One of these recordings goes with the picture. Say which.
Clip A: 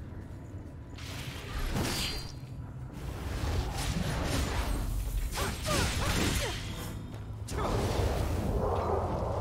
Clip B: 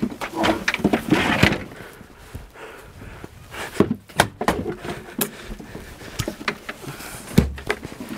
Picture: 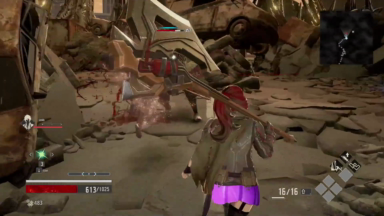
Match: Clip A